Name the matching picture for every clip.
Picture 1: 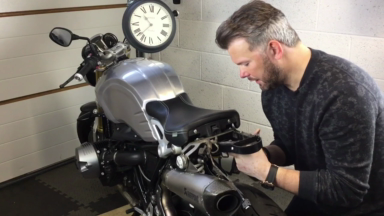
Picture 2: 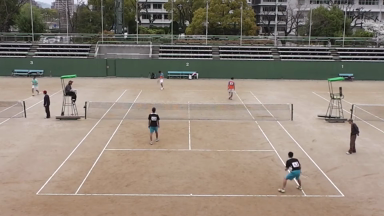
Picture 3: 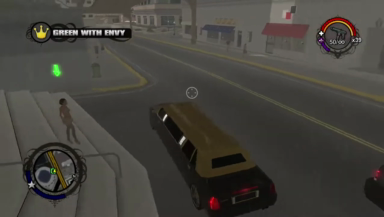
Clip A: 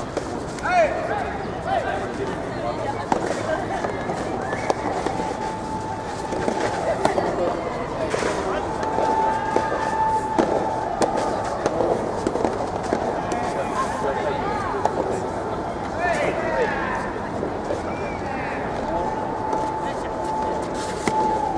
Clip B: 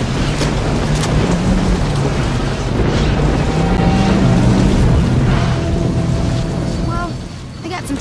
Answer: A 2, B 3